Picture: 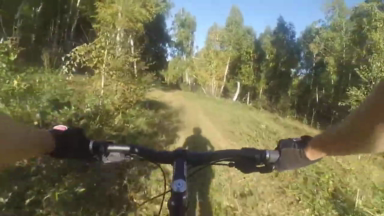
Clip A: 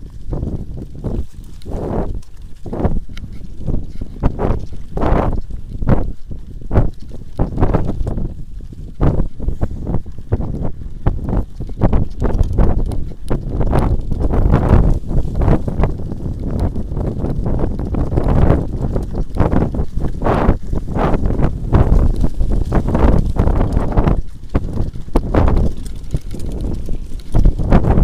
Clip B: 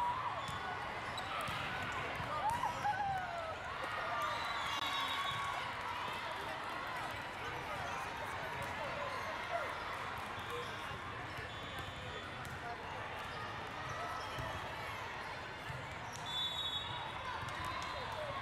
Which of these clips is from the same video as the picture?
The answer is A